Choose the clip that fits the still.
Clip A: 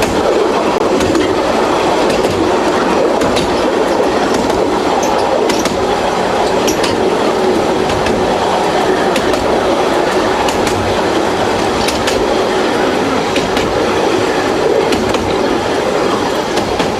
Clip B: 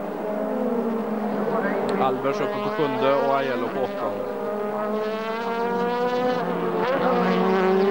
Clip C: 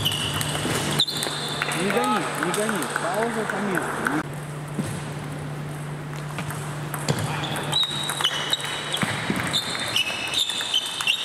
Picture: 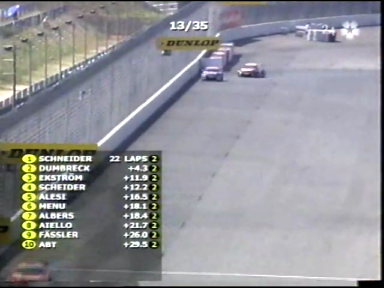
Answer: B